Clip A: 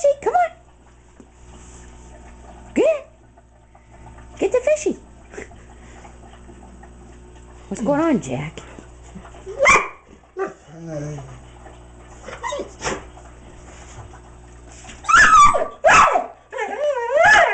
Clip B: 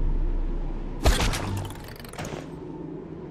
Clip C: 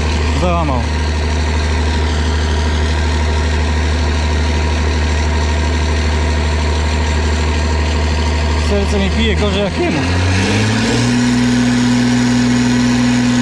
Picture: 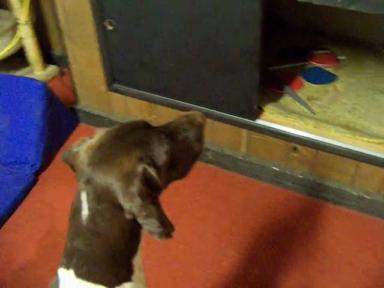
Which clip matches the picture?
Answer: A